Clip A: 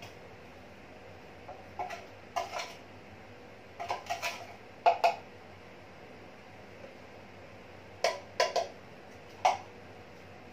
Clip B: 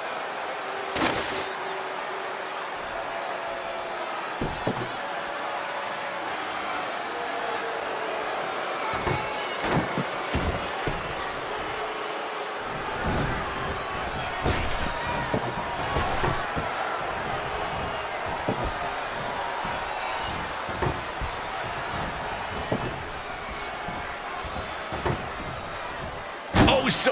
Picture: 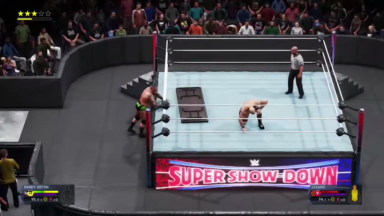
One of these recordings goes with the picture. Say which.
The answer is B